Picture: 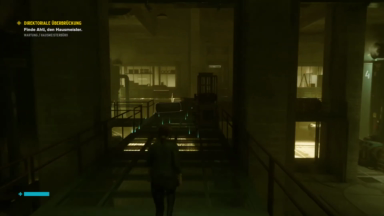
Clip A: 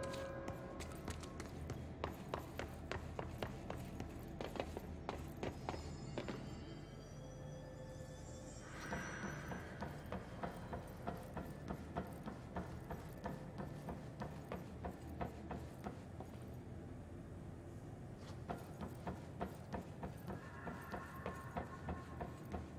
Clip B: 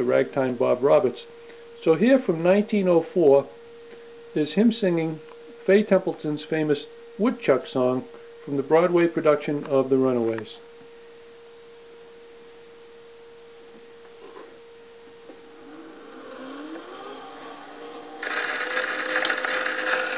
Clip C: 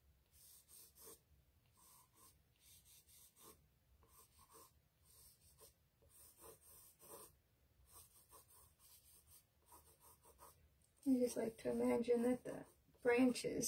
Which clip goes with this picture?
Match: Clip A